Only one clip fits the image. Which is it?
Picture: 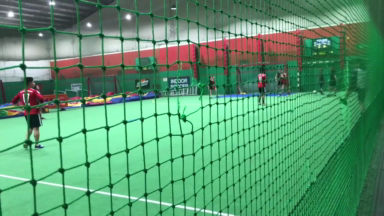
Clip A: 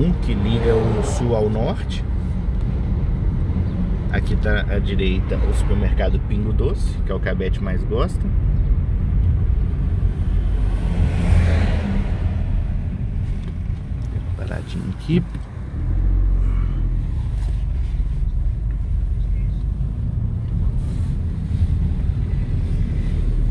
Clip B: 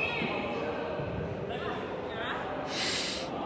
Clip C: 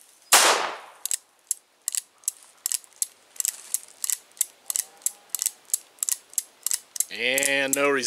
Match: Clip B